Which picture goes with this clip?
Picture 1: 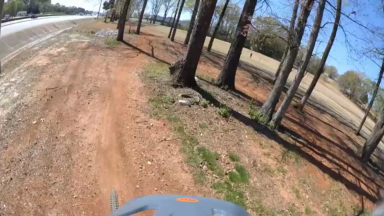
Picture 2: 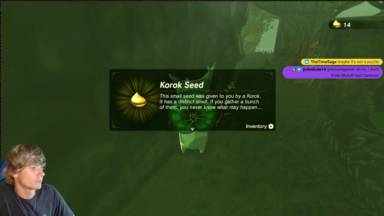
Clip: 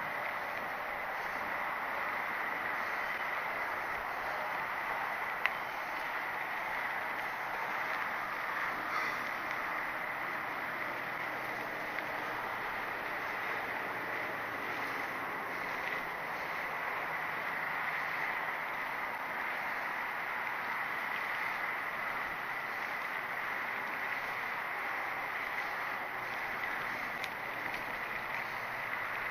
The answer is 1